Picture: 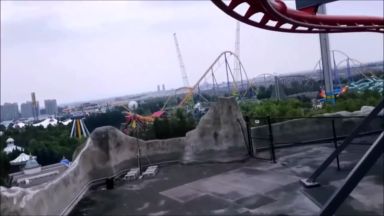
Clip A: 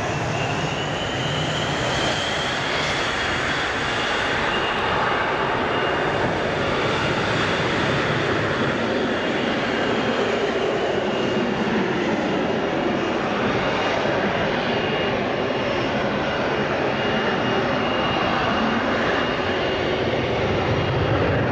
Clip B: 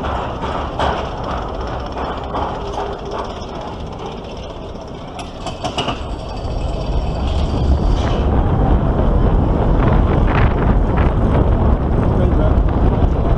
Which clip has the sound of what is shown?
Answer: B